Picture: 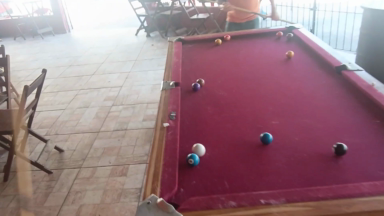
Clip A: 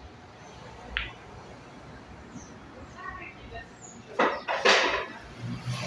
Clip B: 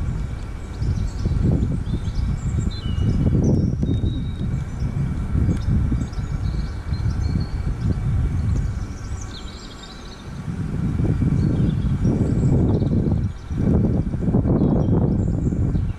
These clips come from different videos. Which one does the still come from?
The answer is A